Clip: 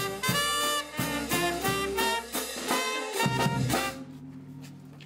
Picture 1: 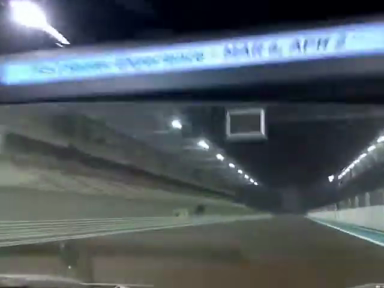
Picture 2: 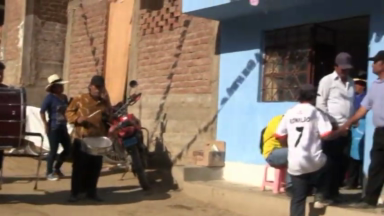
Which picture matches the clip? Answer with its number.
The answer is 2